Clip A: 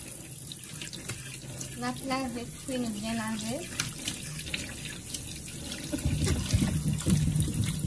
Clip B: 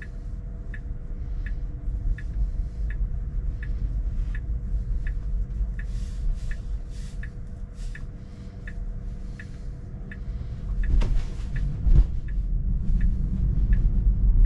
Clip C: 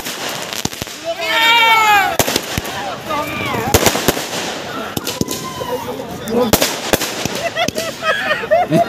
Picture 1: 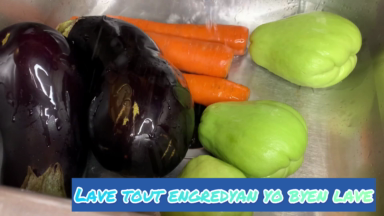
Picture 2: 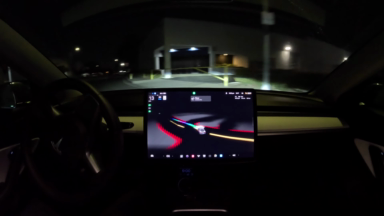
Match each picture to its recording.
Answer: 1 A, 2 B